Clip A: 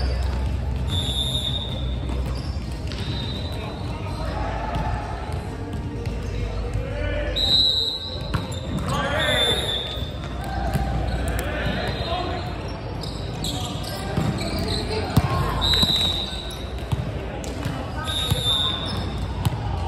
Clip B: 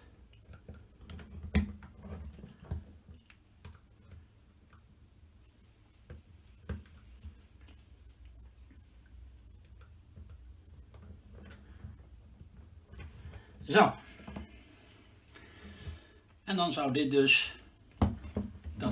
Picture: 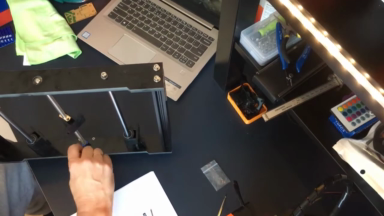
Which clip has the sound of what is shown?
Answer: B